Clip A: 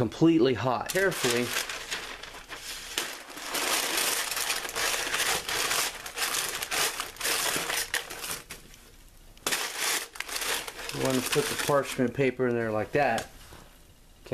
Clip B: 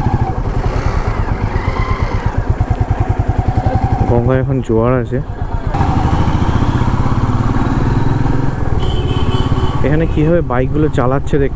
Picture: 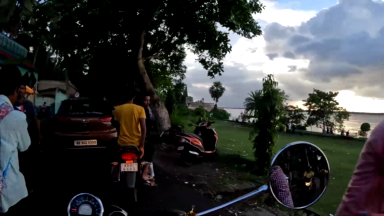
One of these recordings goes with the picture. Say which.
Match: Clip B